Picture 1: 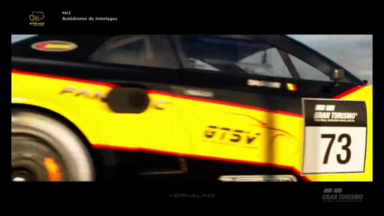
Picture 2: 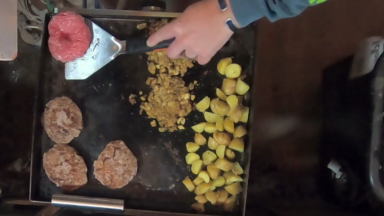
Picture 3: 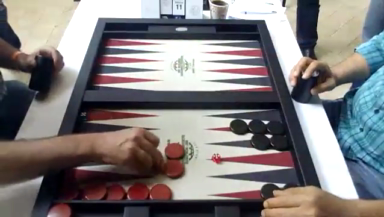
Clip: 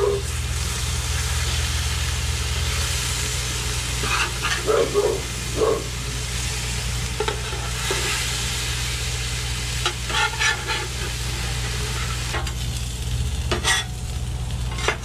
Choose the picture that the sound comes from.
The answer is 2